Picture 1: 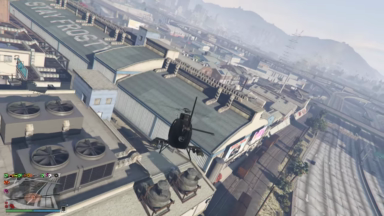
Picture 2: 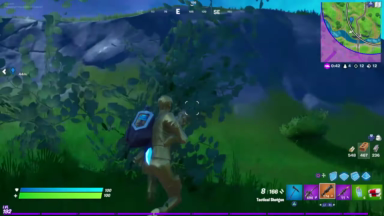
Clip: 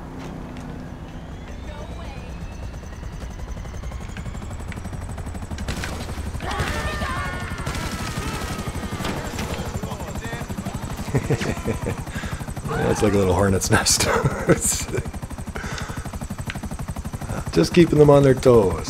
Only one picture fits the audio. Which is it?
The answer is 1